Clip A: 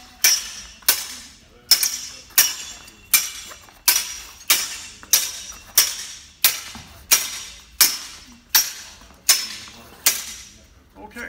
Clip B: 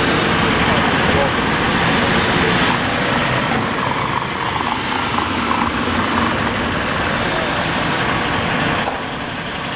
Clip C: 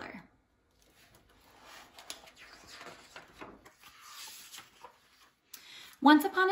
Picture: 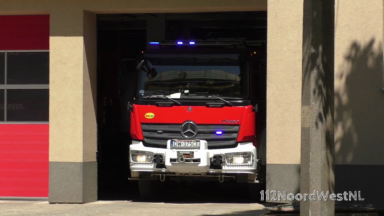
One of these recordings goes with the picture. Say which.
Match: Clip B